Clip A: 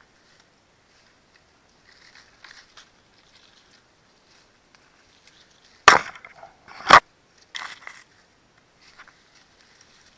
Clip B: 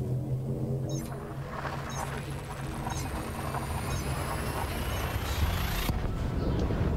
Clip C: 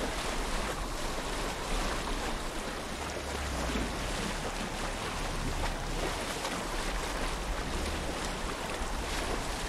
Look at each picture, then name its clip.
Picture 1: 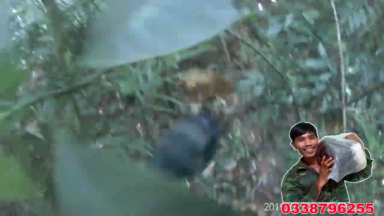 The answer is A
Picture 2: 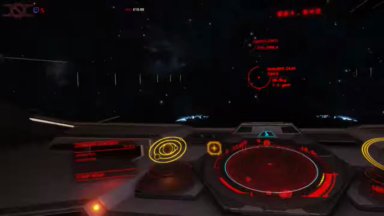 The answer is B